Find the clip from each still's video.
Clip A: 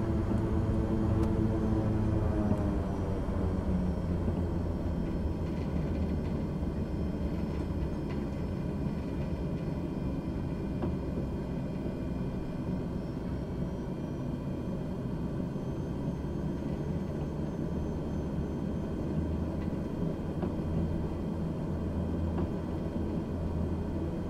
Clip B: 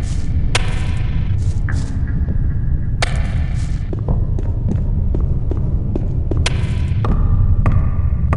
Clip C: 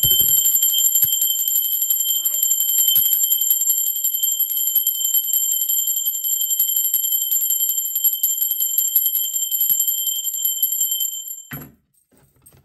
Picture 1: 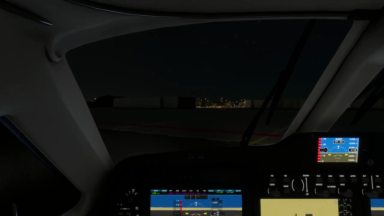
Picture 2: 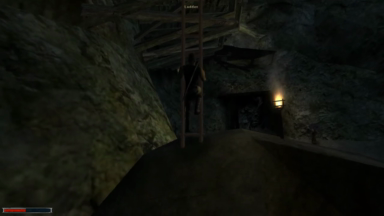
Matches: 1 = A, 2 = B